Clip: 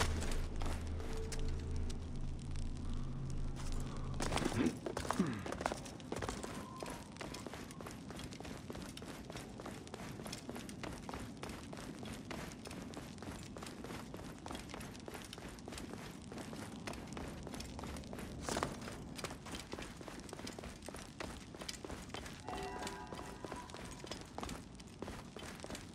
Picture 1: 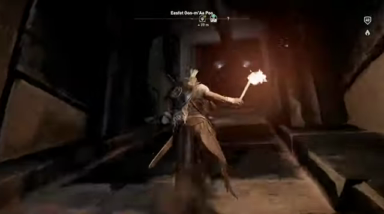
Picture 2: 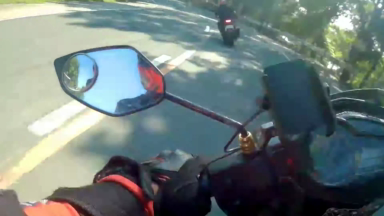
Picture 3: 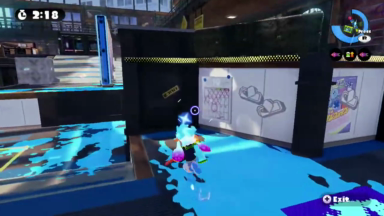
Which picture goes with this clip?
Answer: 1